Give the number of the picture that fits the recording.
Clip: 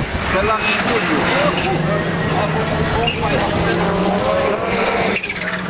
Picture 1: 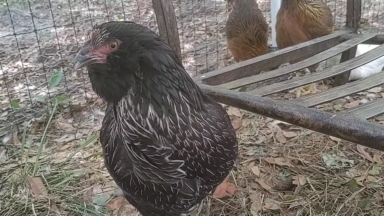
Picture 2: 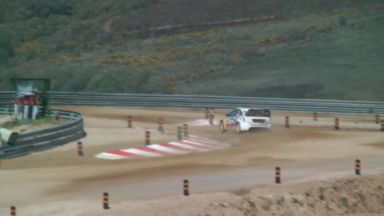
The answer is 2